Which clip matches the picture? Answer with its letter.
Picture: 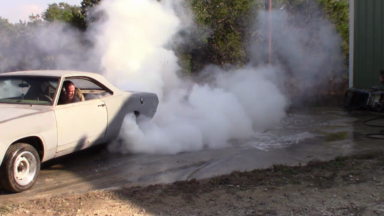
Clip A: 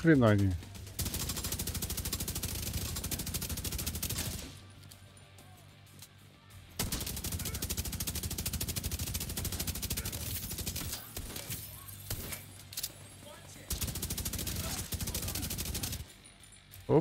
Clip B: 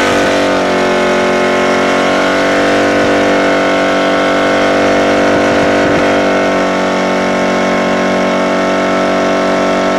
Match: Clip B